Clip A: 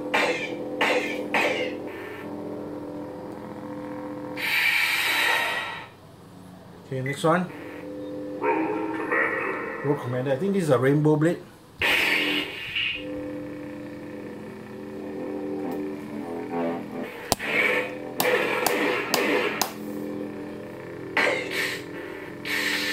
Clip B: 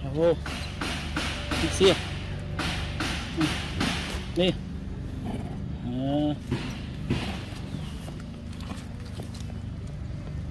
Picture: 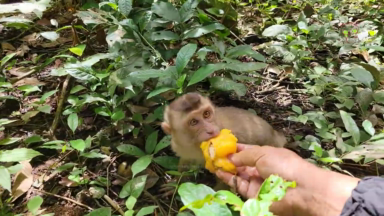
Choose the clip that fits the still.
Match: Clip B